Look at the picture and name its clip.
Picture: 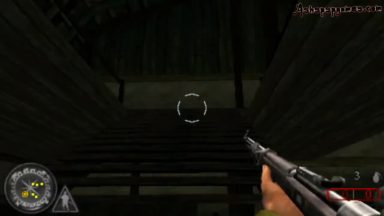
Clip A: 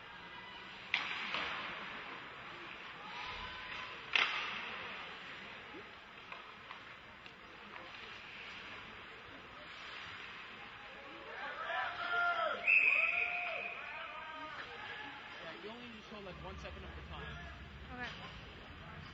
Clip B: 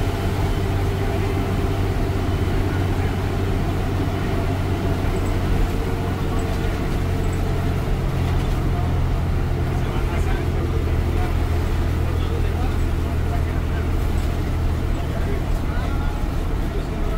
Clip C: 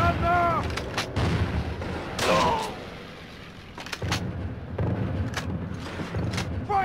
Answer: C